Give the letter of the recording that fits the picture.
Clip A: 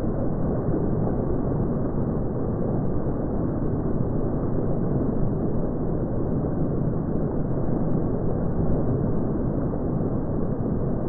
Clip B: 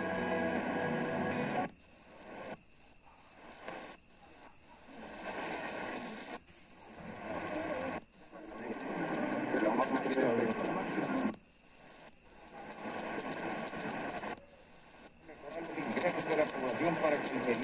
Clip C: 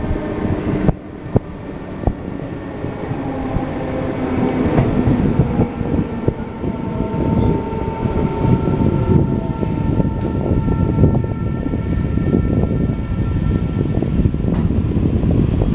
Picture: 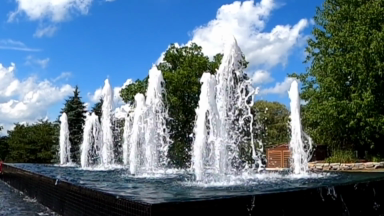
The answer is A